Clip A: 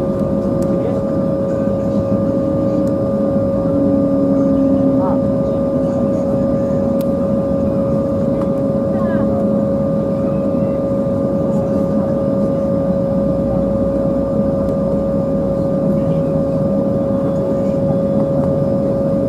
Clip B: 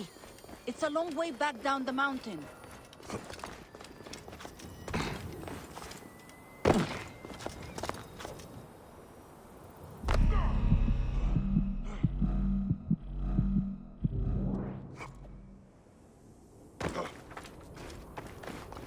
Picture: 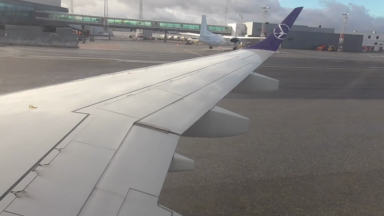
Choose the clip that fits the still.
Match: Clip A